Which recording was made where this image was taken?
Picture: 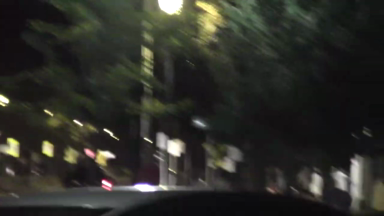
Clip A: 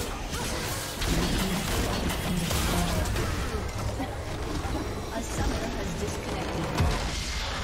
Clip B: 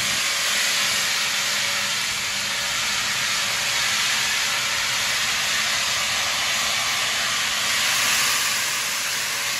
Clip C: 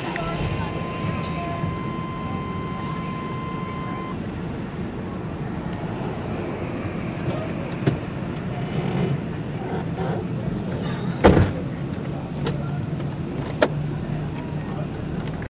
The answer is C